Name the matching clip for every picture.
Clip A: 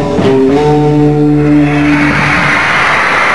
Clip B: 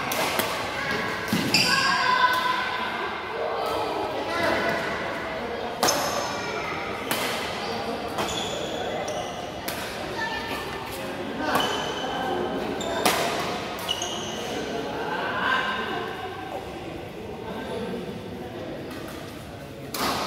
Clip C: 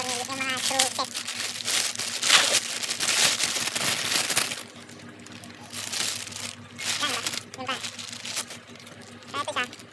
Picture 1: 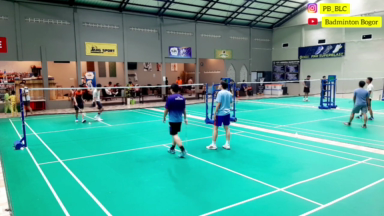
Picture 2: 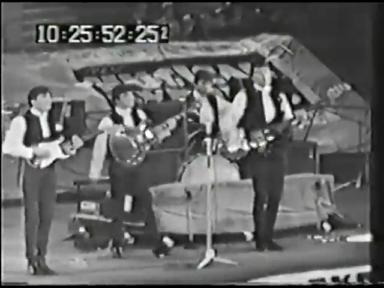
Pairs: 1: B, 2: A